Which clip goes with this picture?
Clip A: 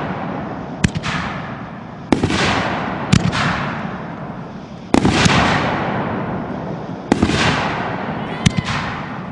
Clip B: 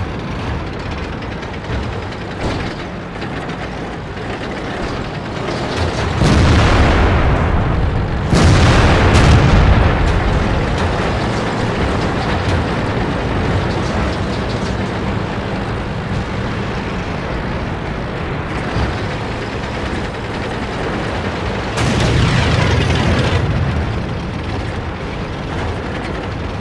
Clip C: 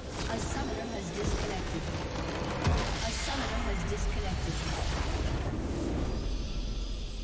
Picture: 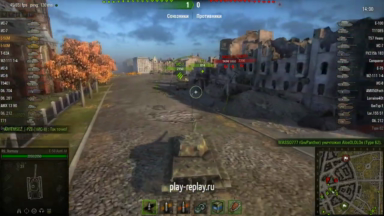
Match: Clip B